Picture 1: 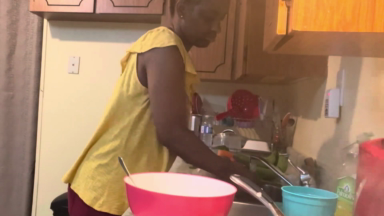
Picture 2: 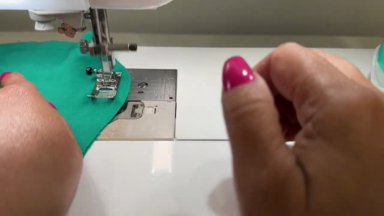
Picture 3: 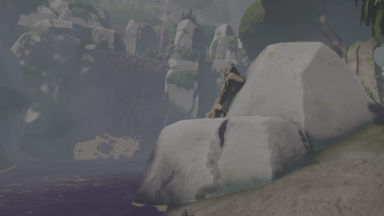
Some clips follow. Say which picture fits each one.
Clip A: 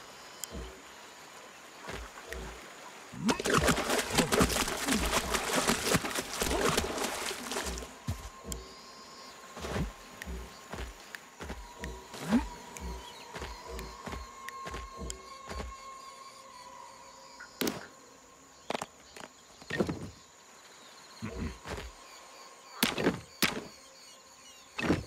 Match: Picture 3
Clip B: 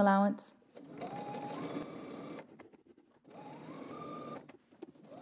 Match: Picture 2